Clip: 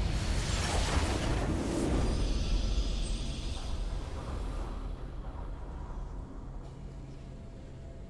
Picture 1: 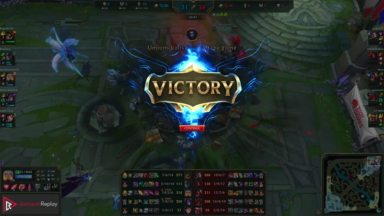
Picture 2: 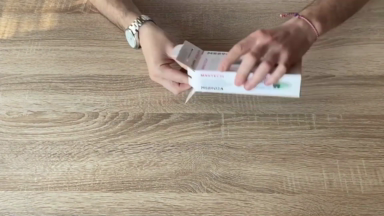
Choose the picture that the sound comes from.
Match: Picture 1